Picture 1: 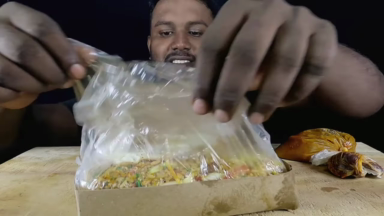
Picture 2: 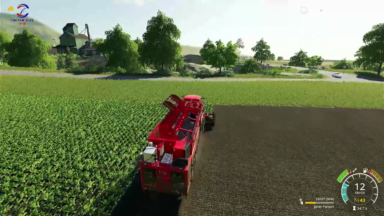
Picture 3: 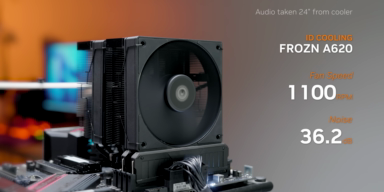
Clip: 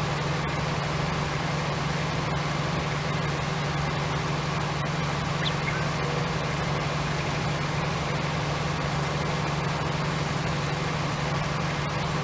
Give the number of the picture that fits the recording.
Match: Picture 2